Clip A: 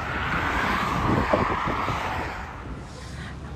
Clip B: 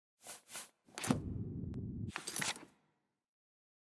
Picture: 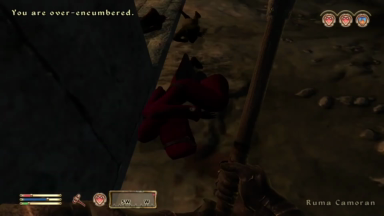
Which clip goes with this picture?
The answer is B